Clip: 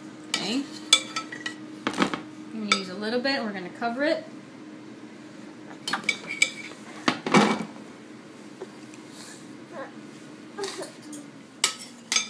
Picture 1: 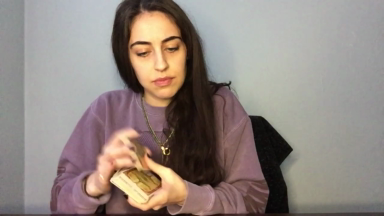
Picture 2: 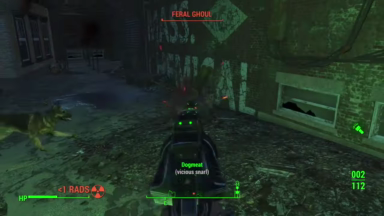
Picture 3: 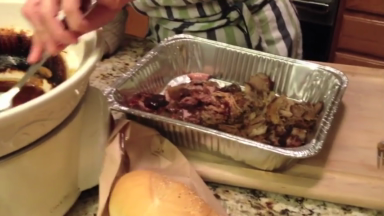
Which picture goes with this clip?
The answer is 3